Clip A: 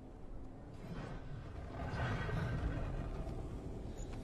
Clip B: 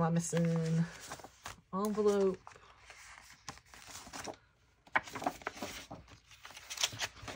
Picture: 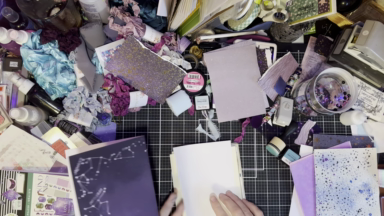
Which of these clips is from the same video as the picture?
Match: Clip B